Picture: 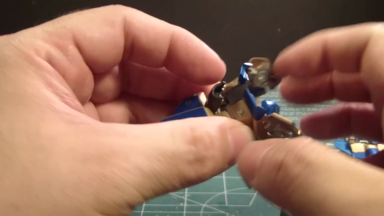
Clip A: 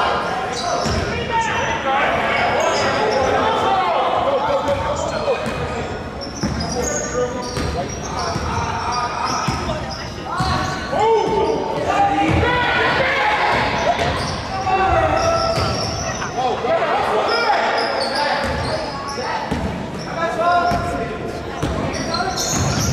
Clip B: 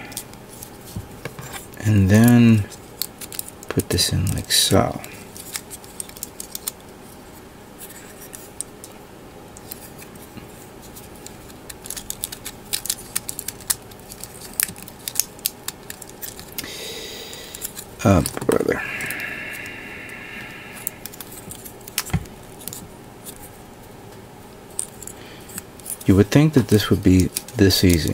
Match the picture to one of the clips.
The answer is B